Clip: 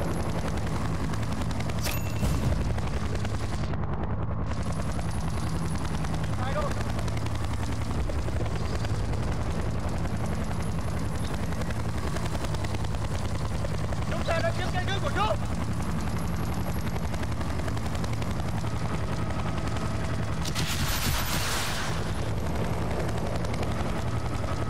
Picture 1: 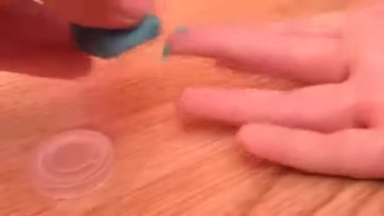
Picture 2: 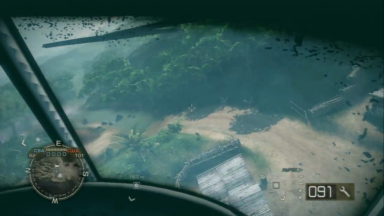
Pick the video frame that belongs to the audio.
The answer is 2